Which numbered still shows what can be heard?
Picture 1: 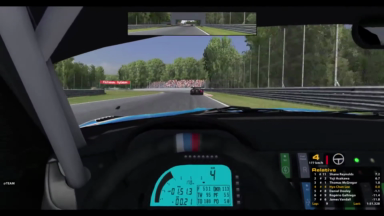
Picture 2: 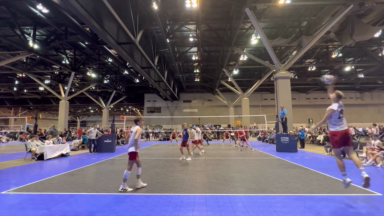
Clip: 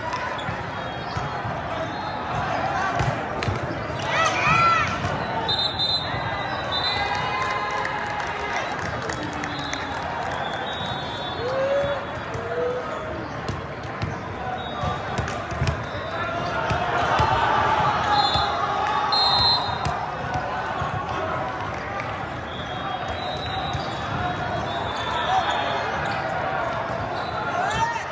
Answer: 2